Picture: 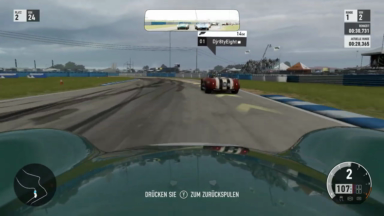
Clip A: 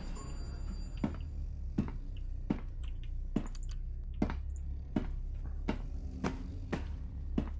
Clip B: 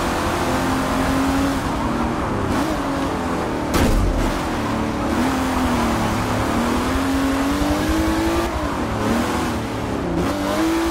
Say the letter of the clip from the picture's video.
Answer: B